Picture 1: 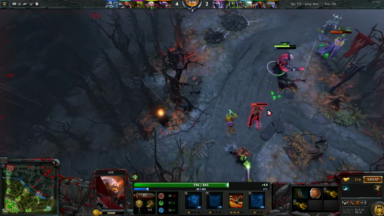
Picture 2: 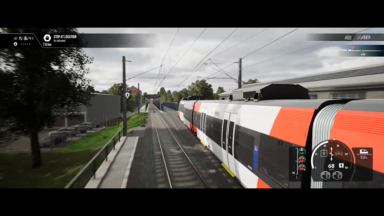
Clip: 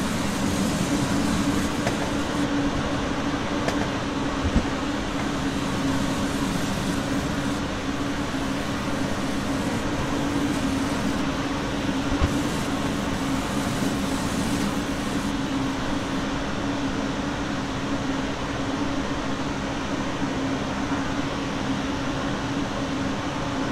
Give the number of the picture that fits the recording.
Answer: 2